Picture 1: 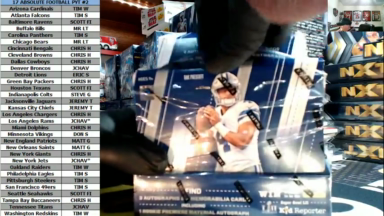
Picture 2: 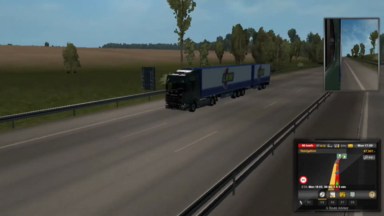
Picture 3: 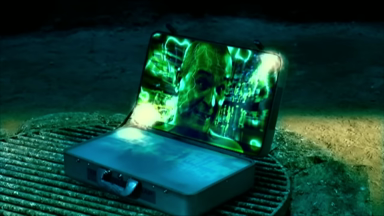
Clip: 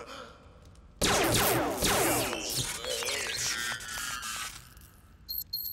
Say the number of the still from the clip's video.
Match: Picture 3